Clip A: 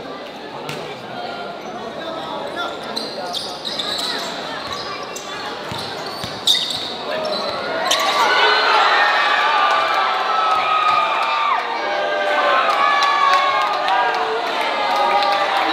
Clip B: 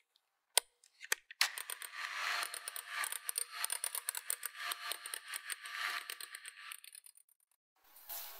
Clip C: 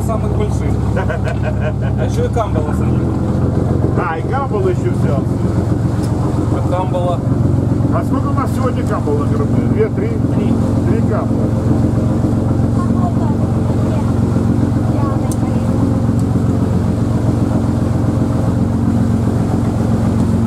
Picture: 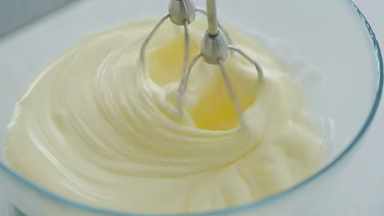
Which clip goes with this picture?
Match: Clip B